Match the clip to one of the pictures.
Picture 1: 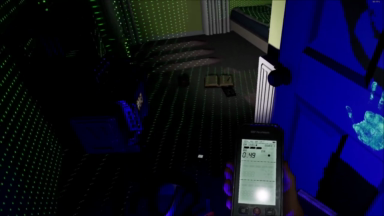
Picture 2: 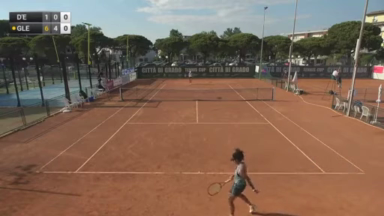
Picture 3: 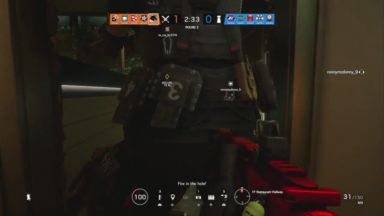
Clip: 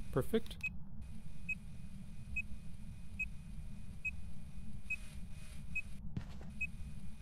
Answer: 1